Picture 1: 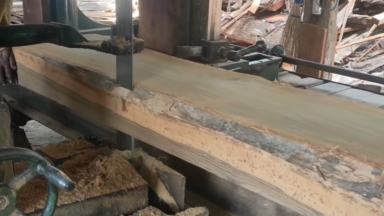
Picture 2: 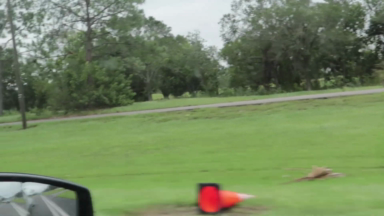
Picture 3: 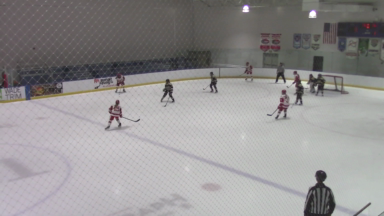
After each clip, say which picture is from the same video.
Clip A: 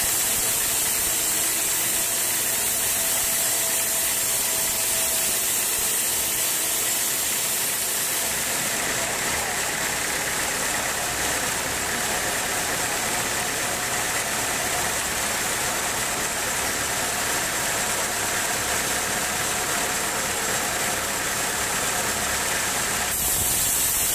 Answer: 1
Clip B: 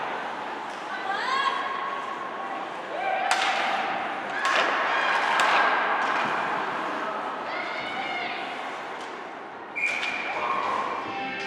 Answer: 3